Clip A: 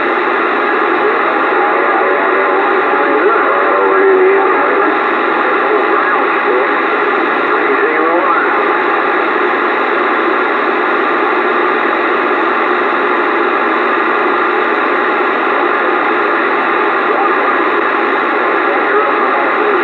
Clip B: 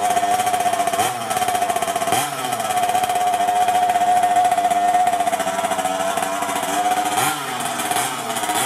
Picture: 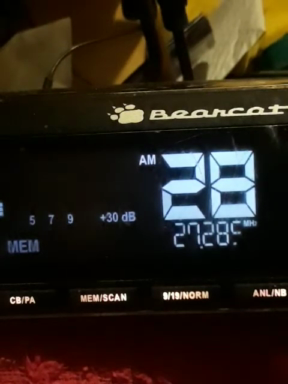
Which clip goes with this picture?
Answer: A